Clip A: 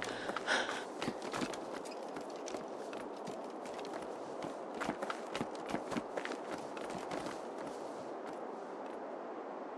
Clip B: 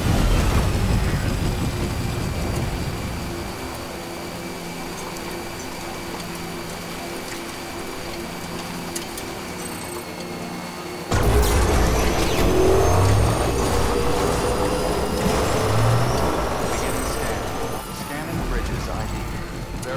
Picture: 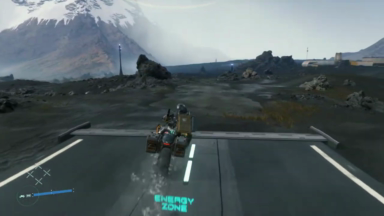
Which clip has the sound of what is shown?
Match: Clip B